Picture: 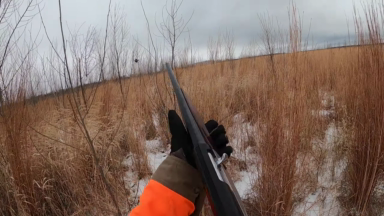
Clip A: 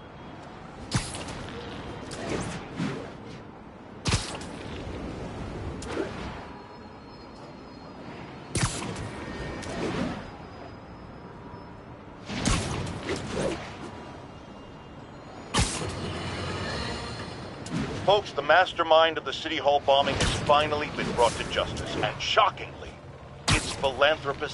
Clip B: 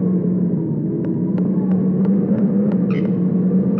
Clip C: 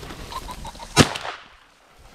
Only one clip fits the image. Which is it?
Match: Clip C